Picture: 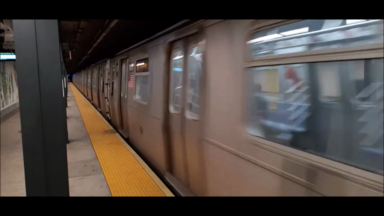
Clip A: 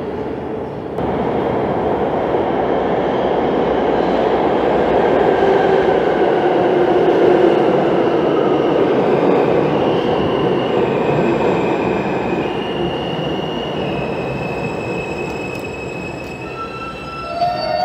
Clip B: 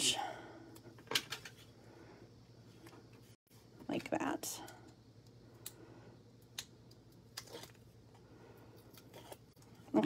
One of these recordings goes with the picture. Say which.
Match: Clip A